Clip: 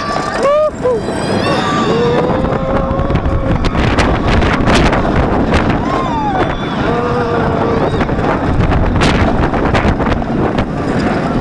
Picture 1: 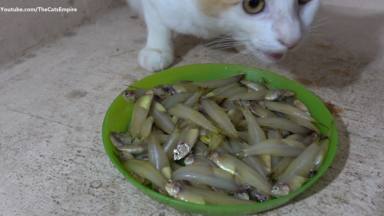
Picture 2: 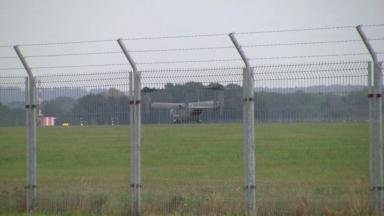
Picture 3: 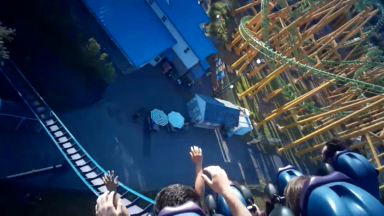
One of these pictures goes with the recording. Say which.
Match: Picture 3